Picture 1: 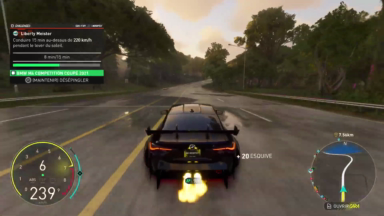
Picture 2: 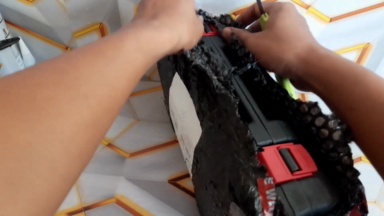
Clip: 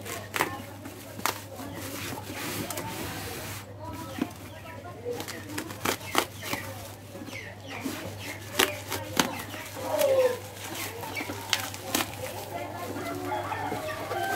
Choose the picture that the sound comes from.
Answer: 2